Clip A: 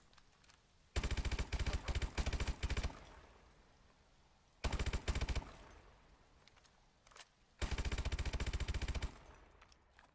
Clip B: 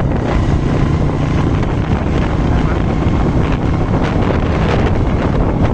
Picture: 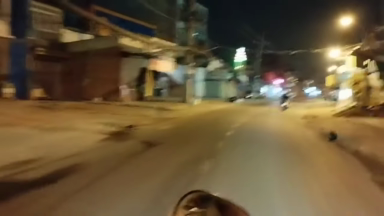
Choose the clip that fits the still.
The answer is B